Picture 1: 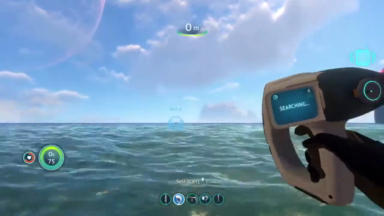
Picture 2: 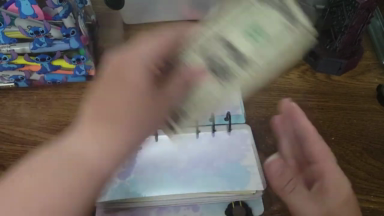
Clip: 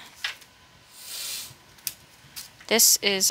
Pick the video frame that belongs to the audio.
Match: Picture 2